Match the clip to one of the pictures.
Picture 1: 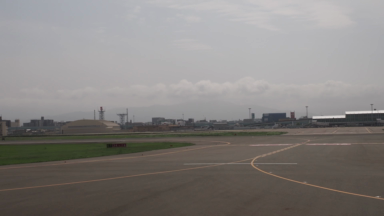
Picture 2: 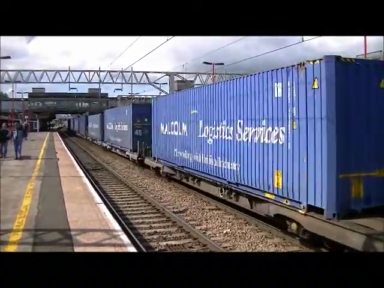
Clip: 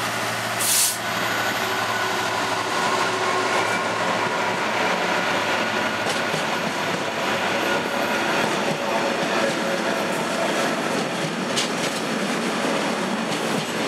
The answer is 2